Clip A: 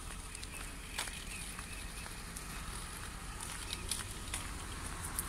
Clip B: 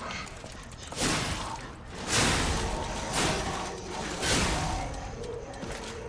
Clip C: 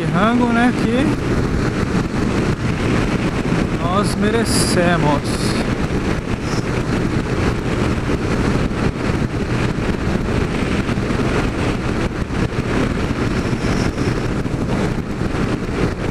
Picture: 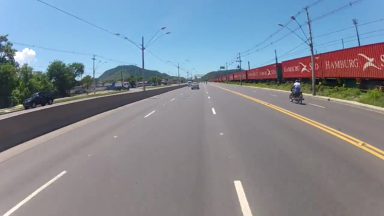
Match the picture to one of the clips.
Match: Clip C